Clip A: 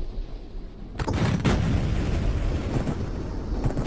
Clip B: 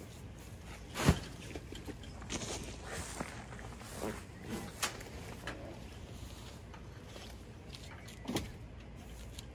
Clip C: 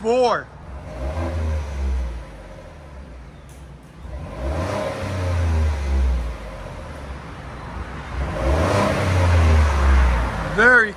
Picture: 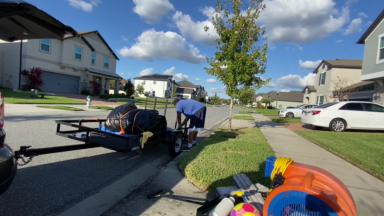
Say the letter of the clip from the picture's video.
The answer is B